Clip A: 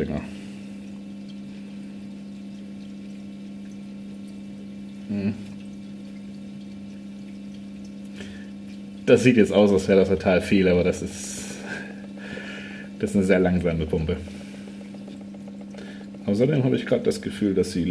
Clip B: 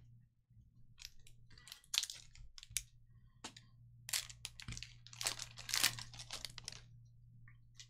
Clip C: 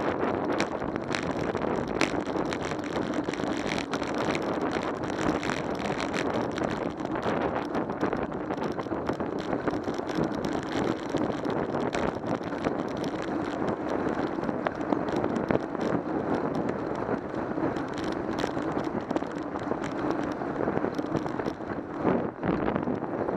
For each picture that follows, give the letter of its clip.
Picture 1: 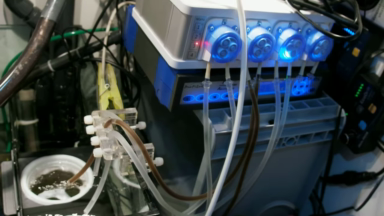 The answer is A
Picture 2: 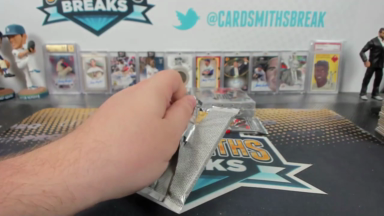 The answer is B